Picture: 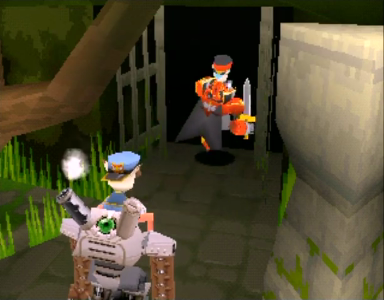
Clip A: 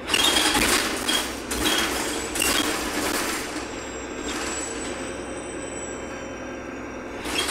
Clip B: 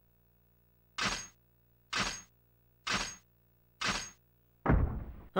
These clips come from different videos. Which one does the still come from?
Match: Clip B